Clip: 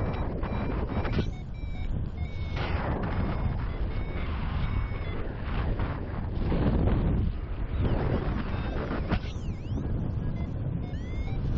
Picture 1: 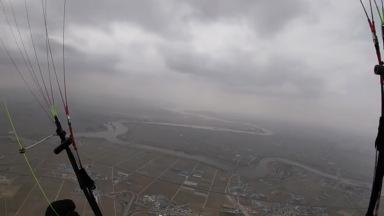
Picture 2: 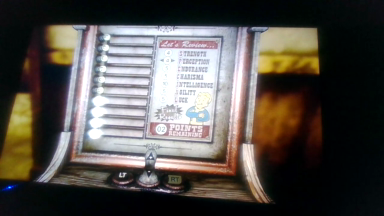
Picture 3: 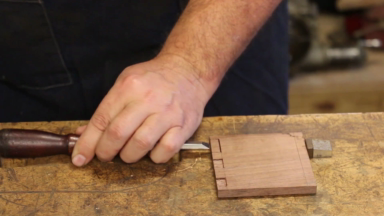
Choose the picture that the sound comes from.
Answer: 1